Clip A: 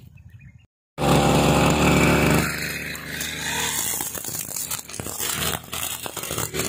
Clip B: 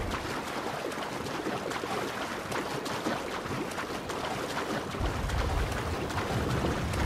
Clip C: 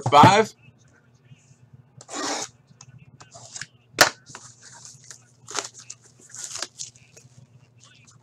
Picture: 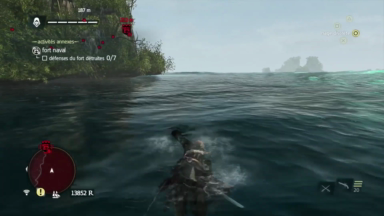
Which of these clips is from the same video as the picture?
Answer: B